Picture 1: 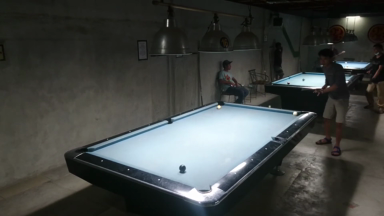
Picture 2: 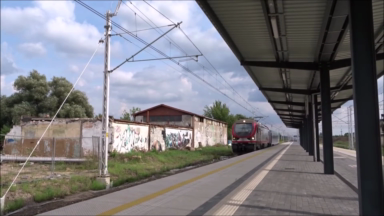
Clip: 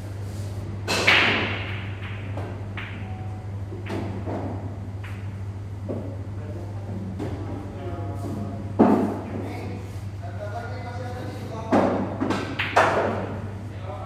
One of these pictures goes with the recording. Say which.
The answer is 1